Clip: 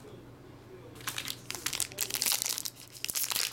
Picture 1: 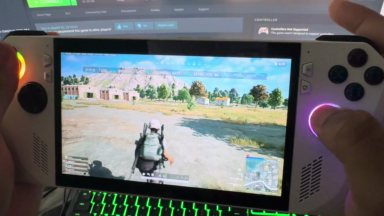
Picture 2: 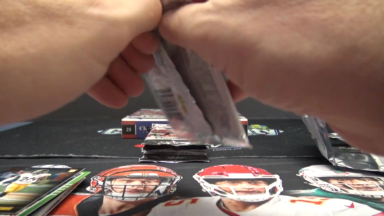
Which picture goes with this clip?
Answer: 2